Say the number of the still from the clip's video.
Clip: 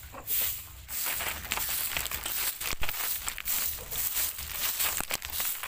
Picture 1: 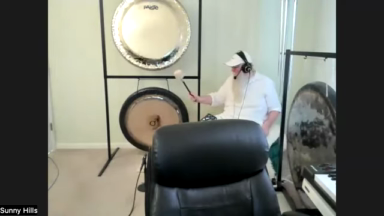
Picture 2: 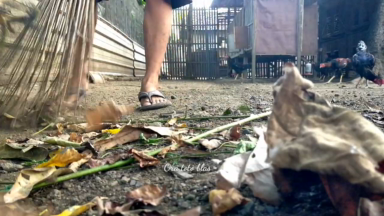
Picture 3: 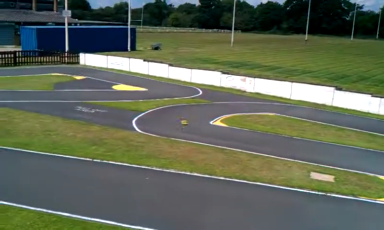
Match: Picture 2